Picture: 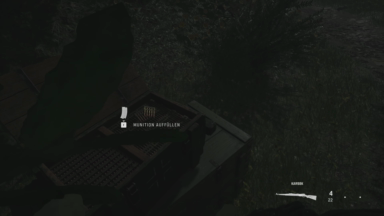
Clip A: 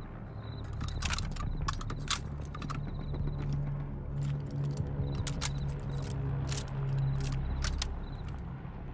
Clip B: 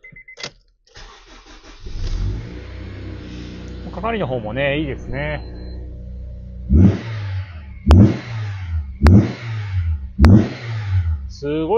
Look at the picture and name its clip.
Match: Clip A